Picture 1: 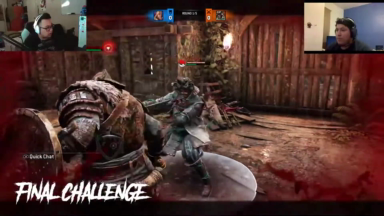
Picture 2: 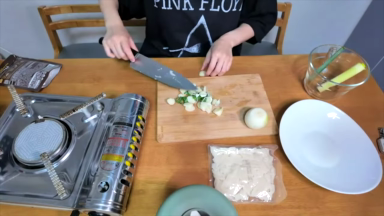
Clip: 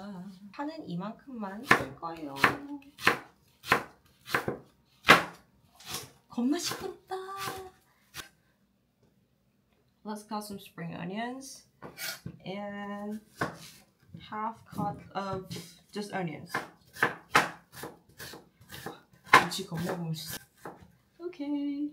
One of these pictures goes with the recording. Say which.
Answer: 2